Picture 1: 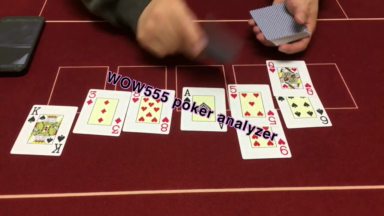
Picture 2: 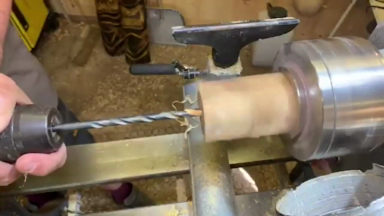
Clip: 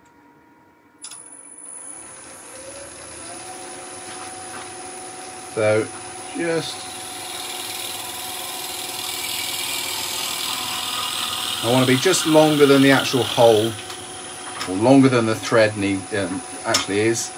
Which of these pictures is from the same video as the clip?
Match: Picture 2